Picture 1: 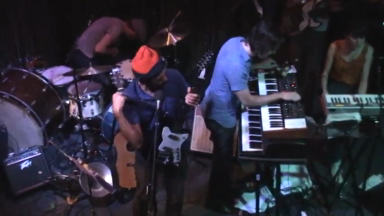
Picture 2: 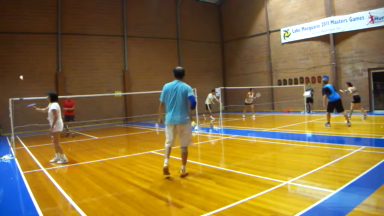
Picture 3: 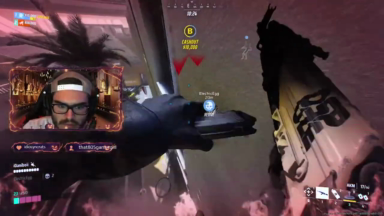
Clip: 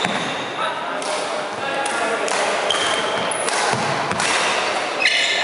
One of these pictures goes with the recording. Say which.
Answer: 2